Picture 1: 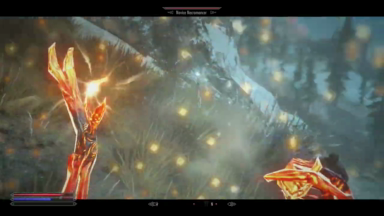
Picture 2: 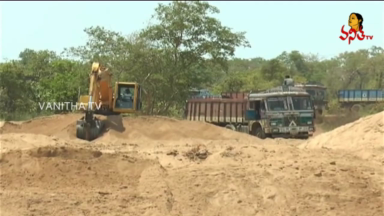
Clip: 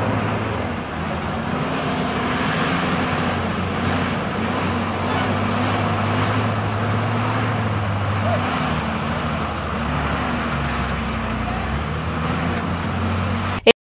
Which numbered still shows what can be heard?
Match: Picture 2